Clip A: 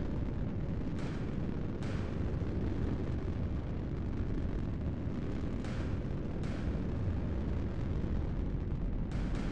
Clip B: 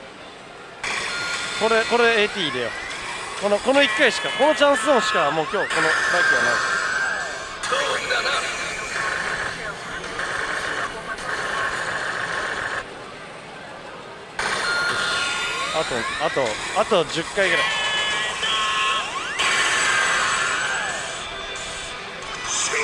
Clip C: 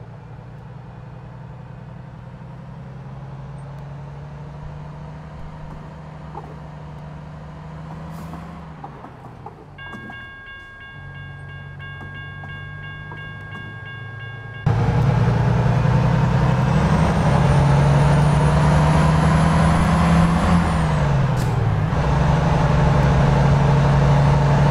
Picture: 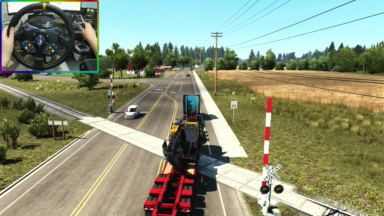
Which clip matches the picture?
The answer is C